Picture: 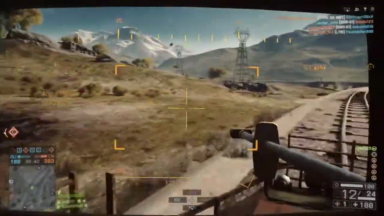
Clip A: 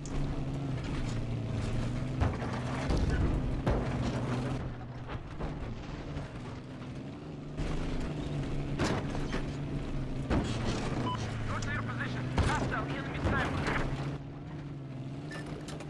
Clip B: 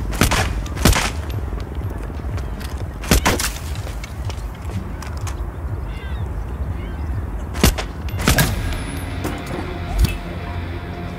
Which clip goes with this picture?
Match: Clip A